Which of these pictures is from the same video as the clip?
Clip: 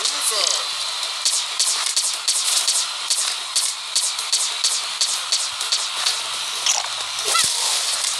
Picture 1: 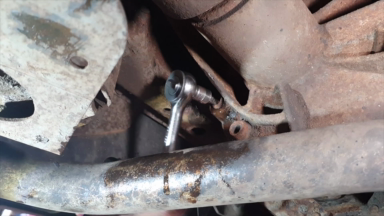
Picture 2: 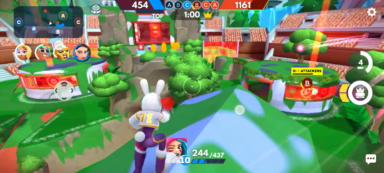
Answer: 2